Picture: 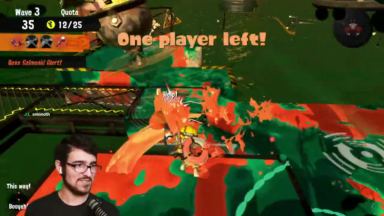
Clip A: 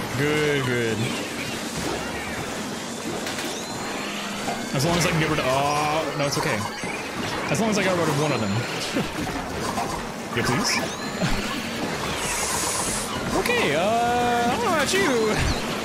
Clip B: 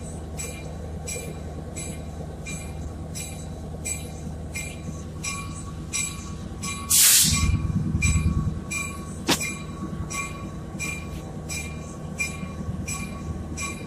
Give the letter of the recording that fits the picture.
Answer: A